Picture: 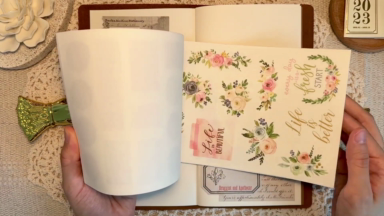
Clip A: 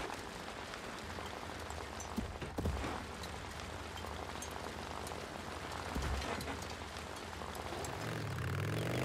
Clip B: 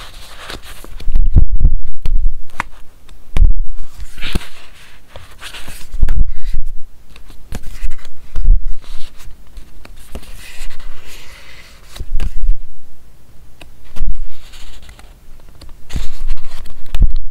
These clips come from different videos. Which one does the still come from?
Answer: B